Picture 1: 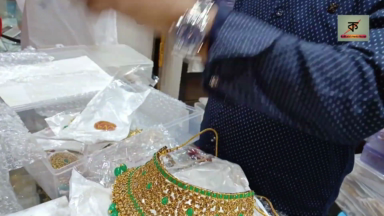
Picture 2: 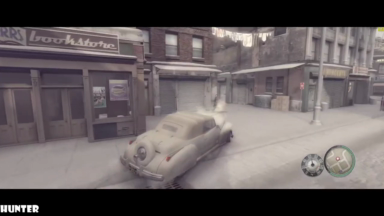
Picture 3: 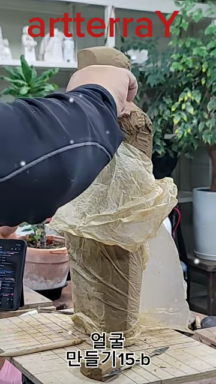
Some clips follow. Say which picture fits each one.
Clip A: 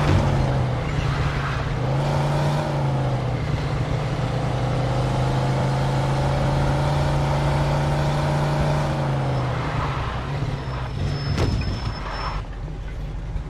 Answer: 2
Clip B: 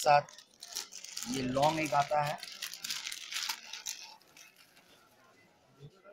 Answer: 1